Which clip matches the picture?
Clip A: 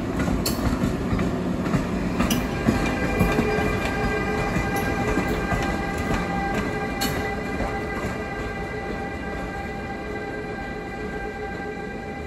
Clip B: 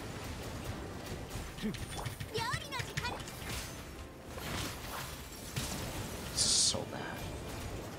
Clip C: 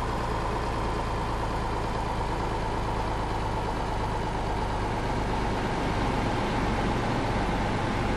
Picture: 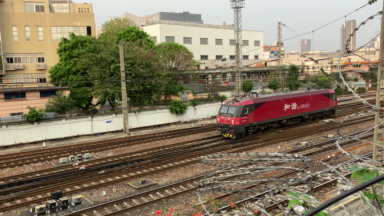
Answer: A